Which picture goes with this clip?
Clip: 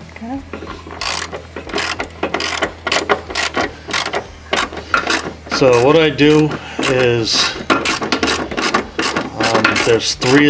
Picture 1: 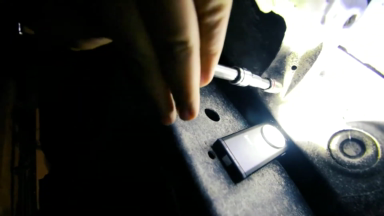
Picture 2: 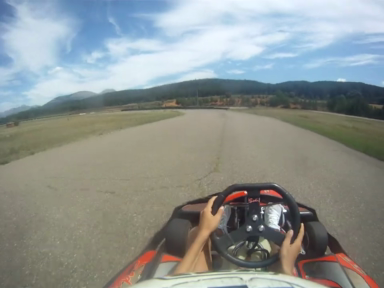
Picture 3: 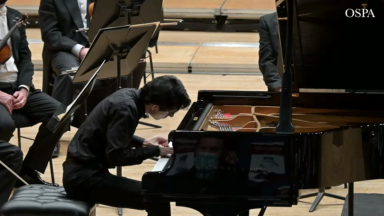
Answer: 1